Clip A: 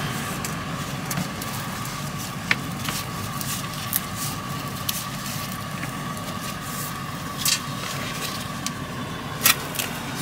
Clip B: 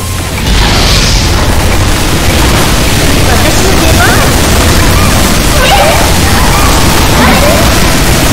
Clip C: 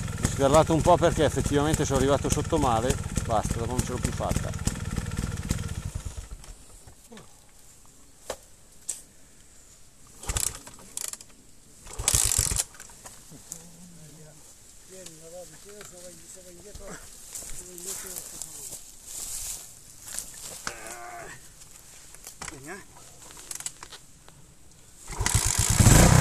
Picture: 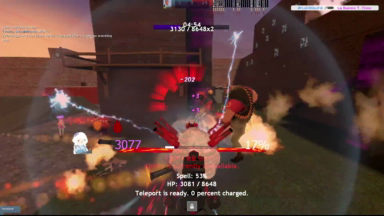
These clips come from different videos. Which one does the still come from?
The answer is B